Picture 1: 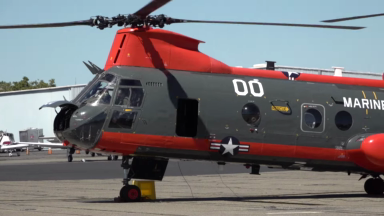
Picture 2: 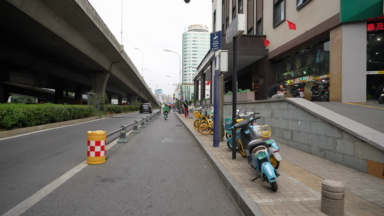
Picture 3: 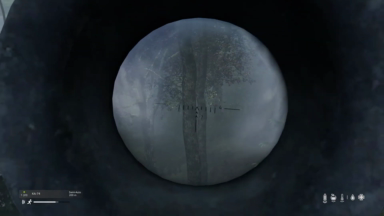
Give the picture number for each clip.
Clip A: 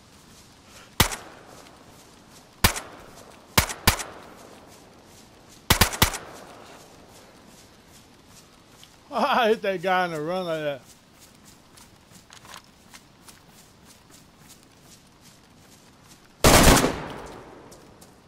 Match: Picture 3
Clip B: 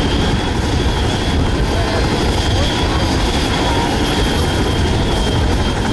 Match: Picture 1